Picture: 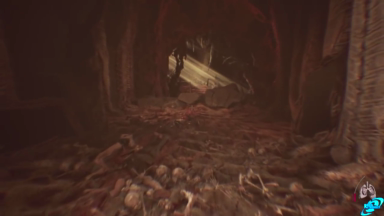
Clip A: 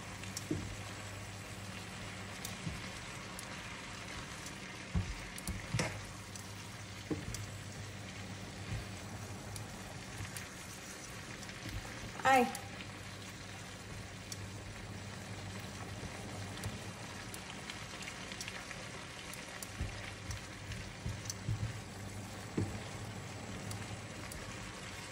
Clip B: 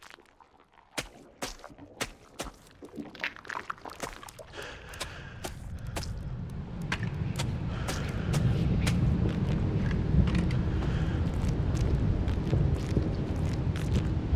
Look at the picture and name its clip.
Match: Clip B